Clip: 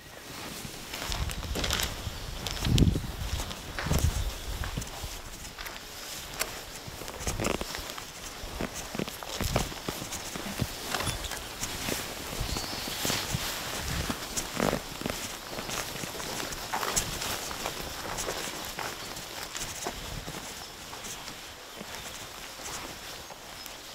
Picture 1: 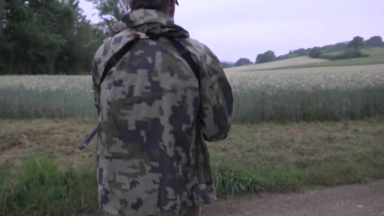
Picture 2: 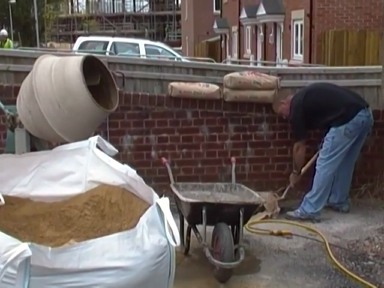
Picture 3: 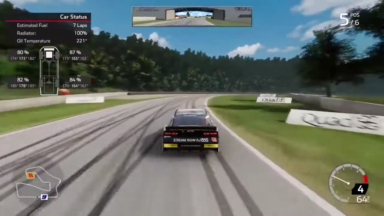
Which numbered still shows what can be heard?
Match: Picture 1